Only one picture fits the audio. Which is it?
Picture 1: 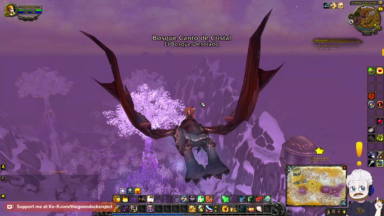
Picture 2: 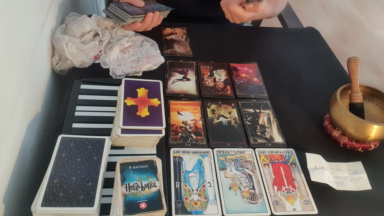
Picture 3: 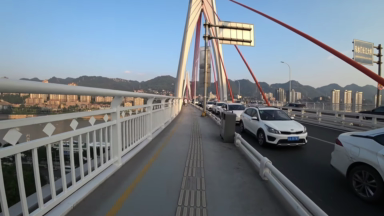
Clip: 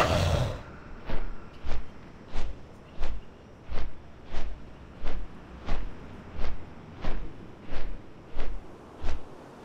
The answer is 1